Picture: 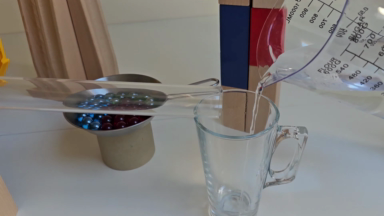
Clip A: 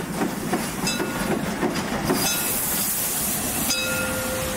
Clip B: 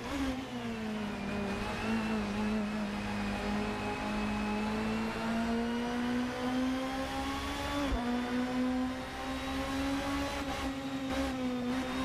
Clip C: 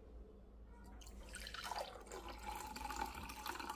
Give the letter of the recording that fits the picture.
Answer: C